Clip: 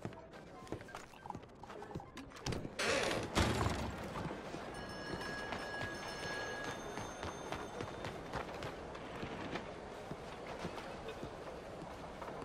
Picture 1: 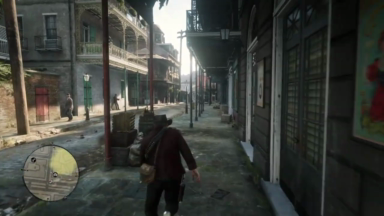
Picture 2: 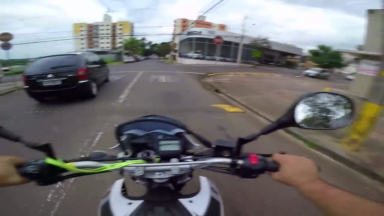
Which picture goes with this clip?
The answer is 1